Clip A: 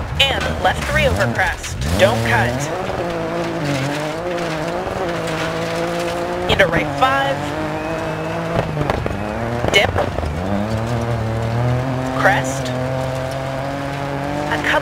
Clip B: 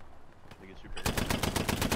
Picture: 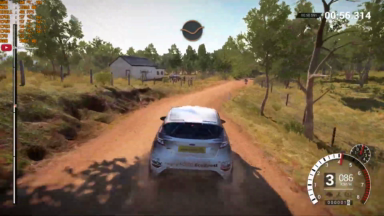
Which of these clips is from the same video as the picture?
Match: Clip A